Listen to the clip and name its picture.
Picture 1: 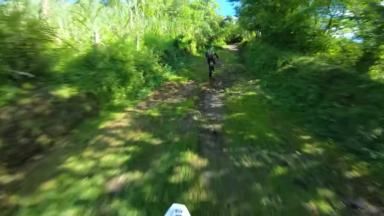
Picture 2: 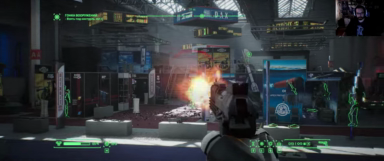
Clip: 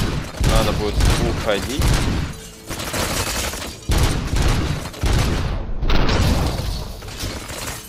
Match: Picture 2